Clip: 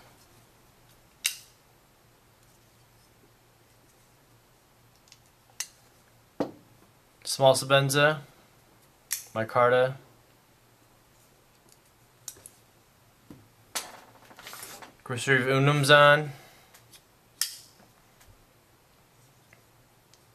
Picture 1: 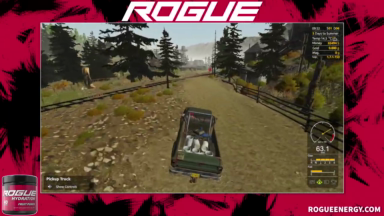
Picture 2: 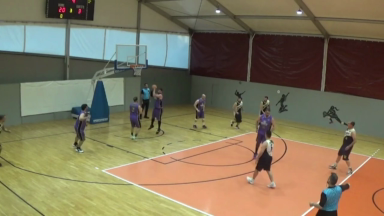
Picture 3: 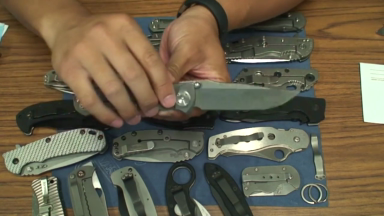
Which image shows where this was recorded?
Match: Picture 3